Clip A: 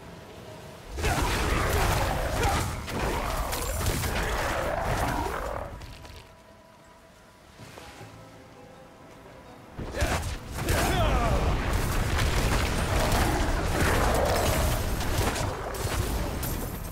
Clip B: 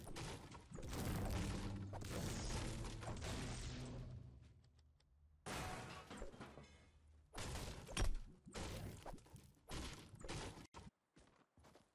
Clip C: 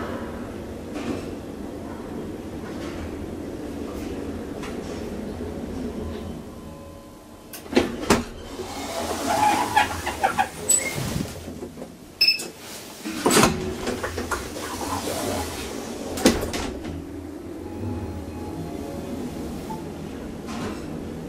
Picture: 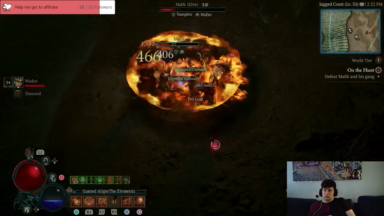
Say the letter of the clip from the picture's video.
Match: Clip A